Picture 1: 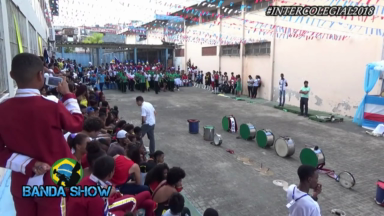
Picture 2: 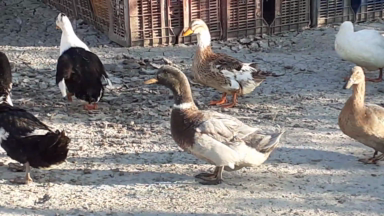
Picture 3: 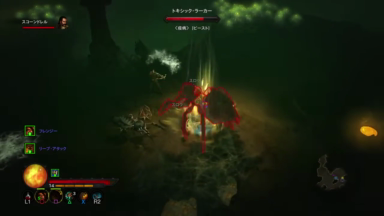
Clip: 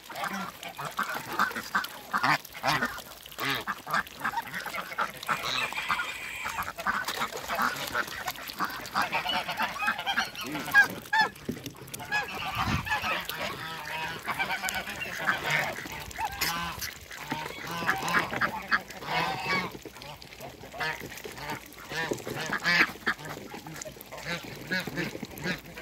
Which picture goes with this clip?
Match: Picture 2